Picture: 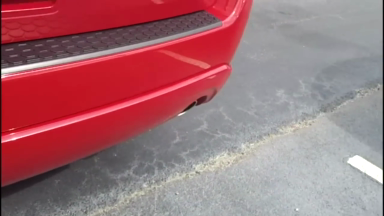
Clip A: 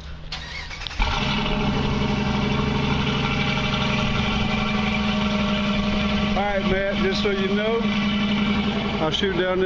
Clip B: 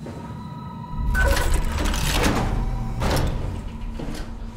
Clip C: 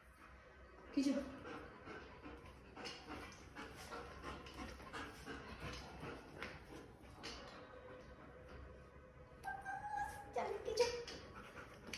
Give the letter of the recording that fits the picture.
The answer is A